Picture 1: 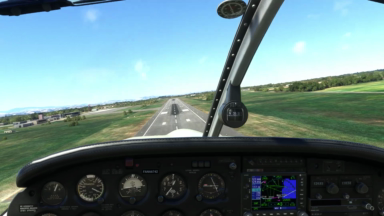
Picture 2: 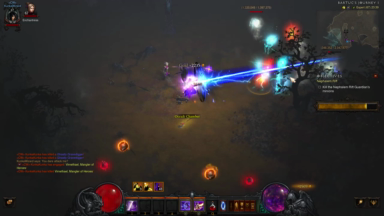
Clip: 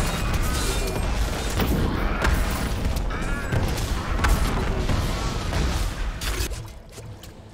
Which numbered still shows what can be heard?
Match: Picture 2